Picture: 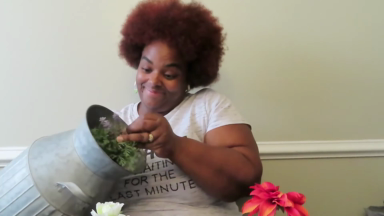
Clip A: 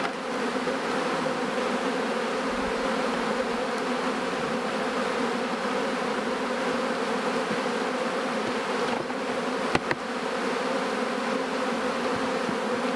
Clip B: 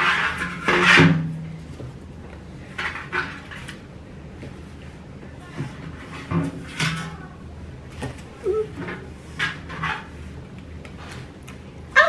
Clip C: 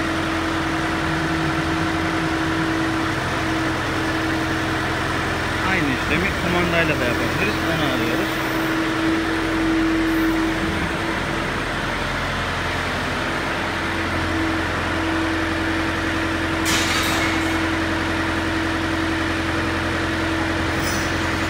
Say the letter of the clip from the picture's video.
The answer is B